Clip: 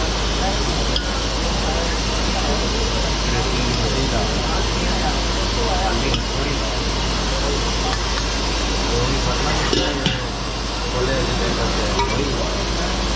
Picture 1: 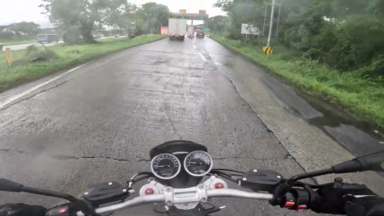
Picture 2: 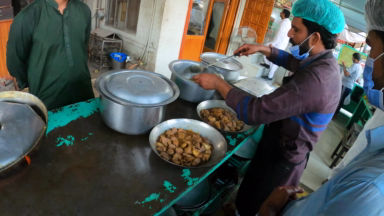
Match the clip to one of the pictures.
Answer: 2